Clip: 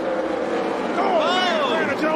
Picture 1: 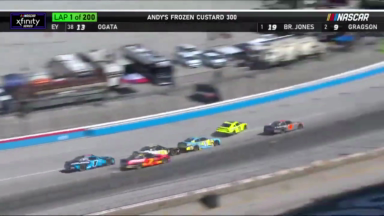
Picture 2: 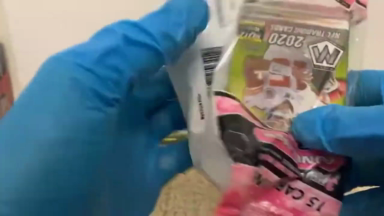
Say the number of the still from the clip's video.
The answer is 1